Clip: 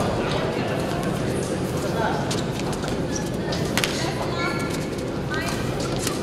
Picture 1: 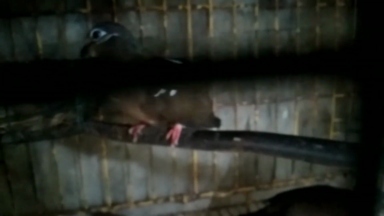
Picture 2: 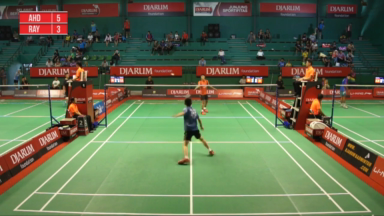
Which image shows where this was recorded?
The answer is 2